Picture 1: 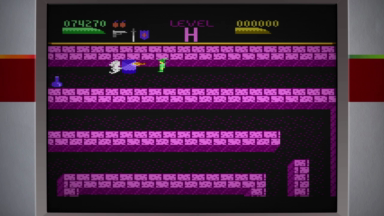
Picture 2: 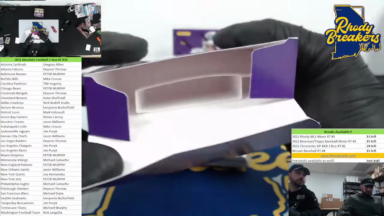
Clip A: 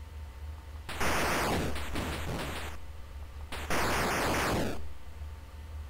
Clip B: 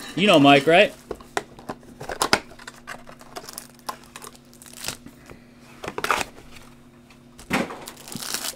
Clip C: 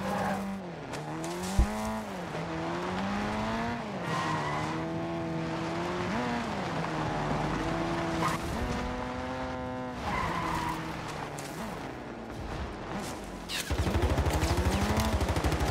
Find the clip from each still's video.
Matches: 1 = A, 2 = B